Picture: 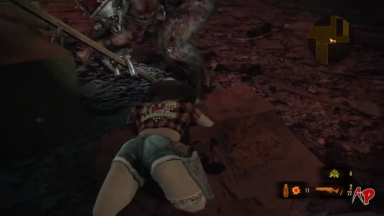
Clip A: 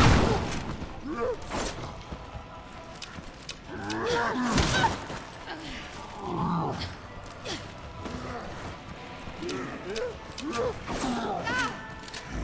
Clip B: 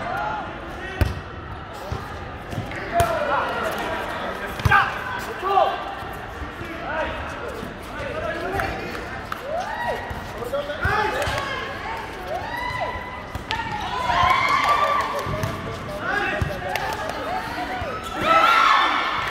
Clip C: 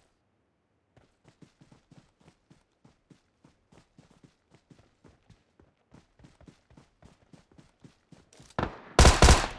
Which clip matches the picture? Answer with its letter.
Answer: A